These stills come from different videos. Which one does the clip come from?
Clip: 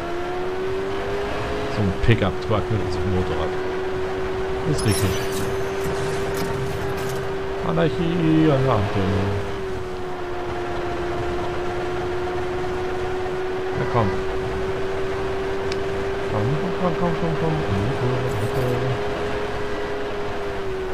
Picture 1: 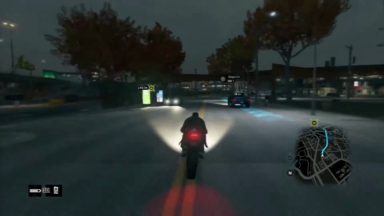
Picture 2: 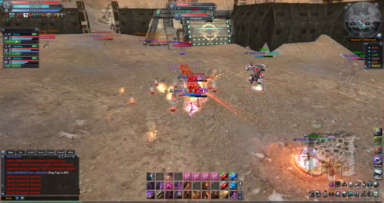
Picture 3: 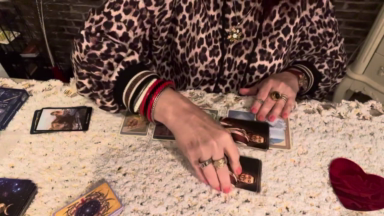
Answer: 1